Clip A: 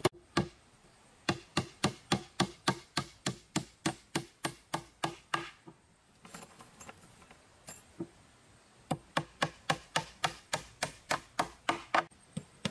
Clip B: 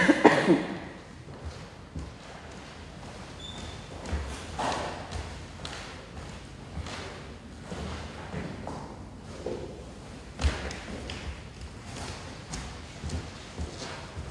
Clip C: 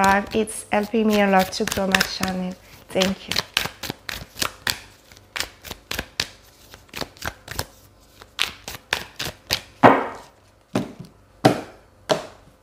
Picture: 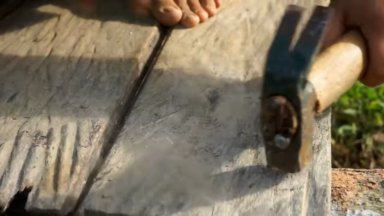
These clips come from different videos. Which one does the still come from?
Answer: A